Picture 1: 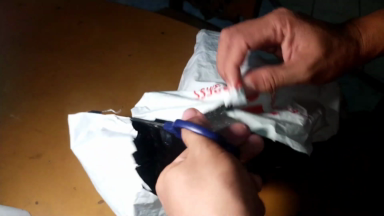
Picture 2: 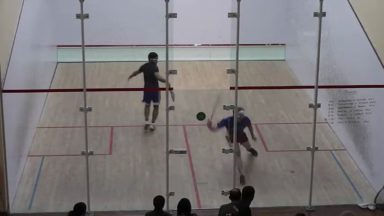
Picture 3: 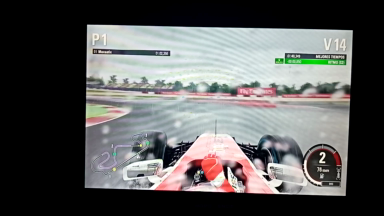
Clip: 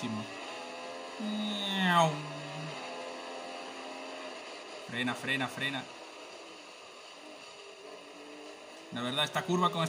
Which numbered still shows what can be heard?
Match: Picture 3